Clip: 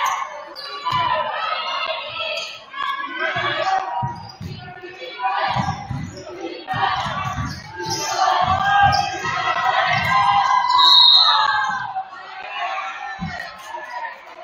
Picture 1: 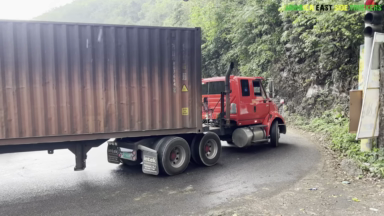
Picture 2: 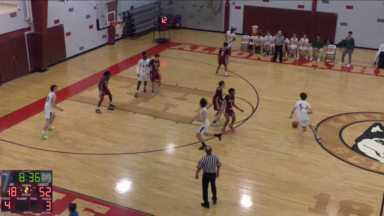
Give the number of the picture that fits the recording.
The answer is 2